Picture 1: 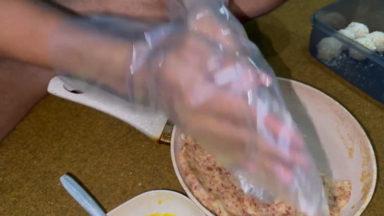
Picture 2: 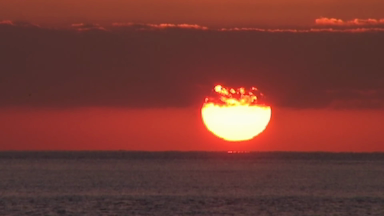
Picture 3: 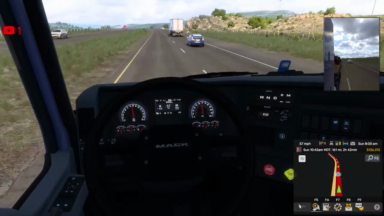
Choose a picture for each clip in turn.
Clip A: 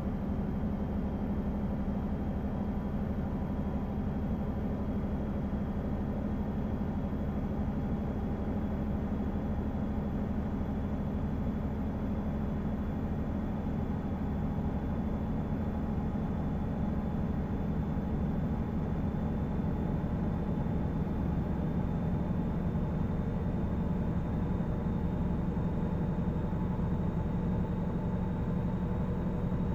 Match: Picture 3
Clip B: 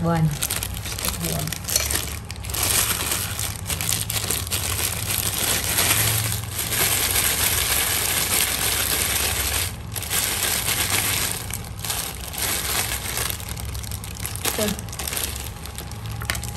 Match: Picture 1